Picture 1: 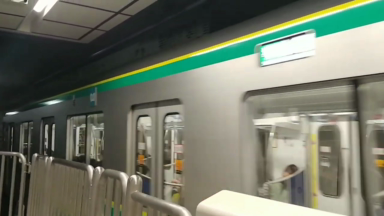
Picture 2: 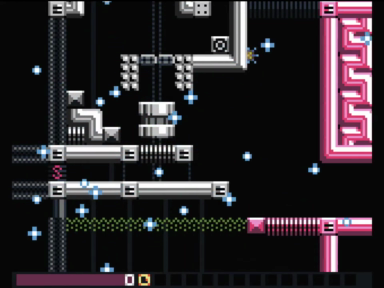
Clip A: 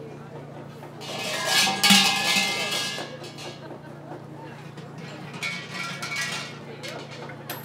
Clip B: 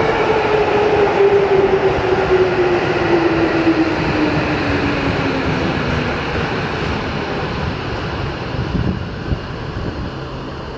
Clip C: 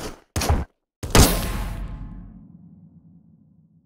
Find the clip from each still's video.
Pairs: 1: B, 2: C